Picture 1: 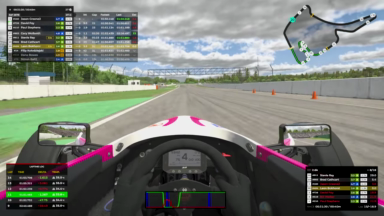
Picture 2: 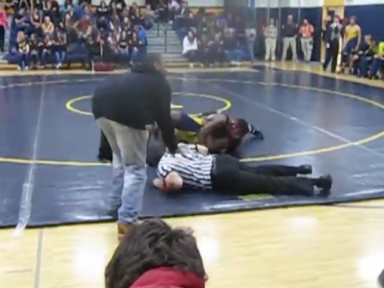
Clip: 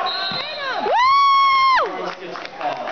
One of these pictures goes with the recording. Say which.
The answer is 2